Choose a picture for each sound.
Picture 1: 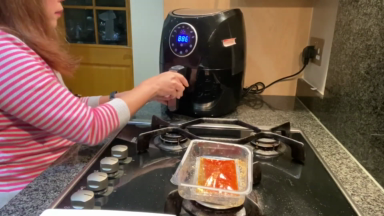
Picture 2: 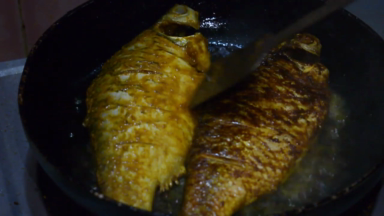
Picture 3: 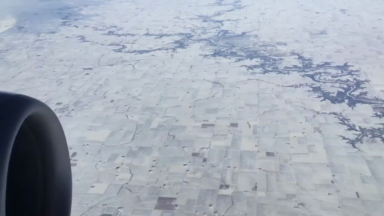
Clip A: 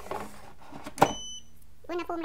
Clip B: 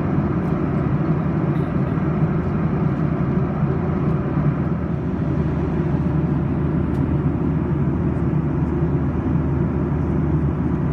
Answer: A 1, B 3